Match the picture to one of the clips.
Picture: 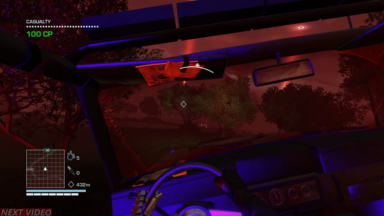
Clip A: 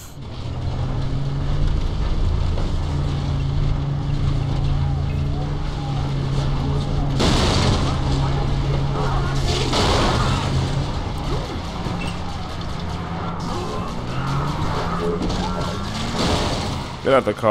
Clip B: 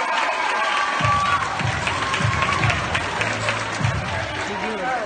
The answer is A